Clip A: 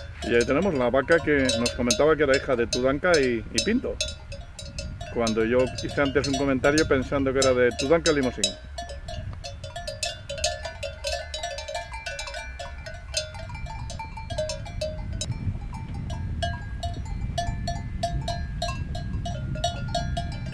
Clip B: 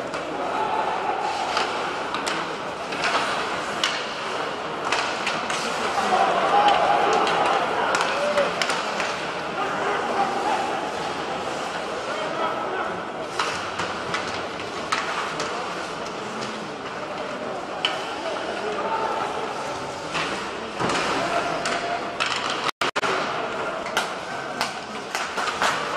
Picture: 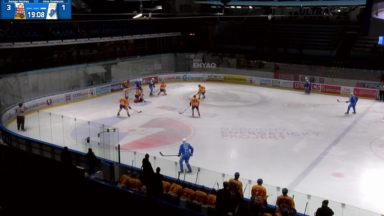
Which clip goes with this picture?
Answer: B